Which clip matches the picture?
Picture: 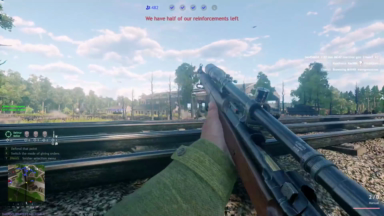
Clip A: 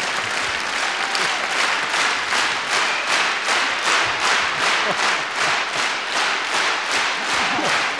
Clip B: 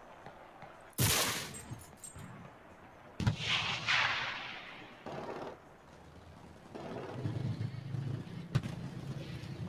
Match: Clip B